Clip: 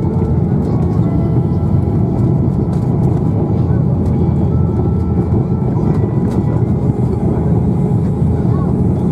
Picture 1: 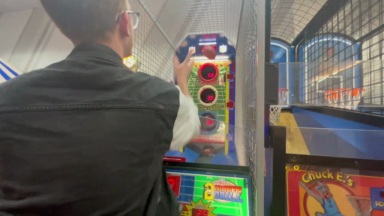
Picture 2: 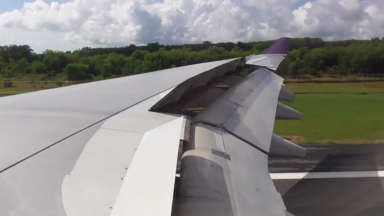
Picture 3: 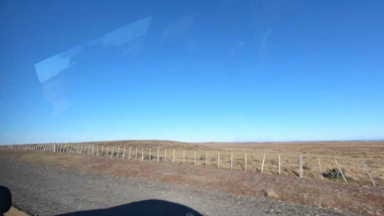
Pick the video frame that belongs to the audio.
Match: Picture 2